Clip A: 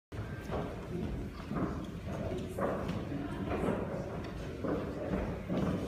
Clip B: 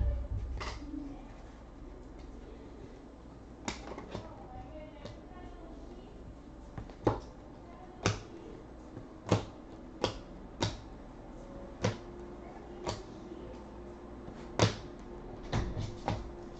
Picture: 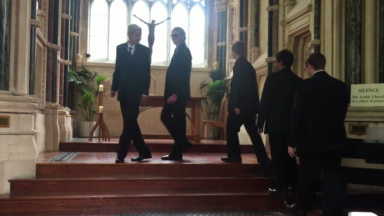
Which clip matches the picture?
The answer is A